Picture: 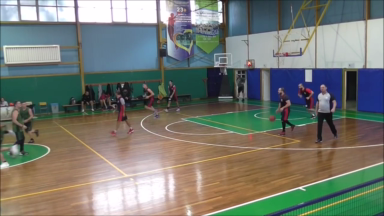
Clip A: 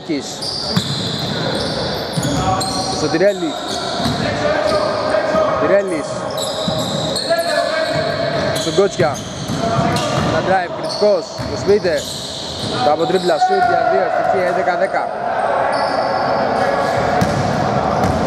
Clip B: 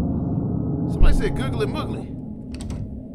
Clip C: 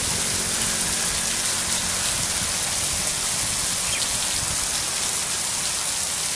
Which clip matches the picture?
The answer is A